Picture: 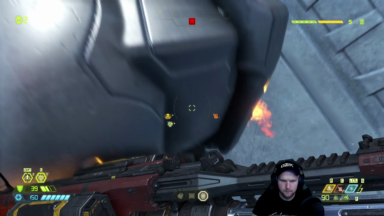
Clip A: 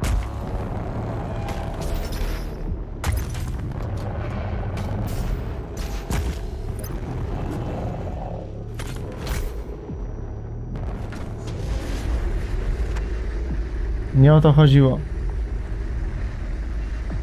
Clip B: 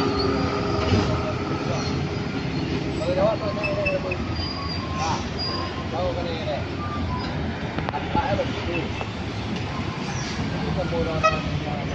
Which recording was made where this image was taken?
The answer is A